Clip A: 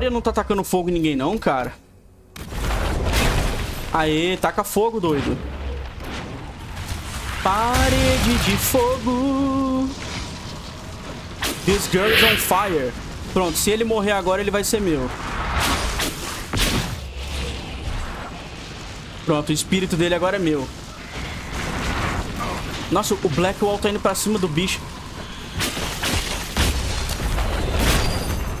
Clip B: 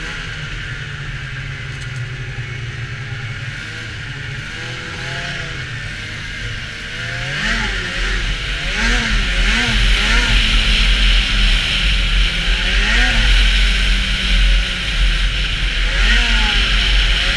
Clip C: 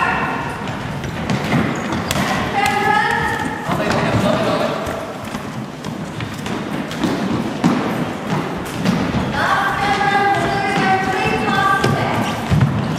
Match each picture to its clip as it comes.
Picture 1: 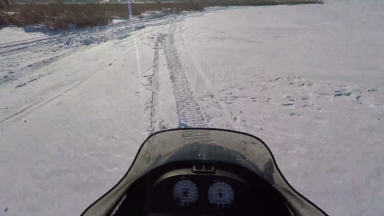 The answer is B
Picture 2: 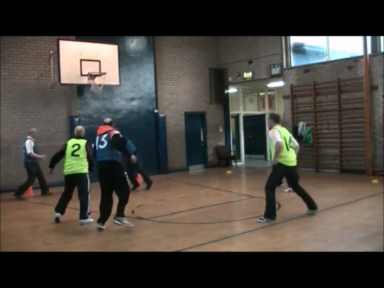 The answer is C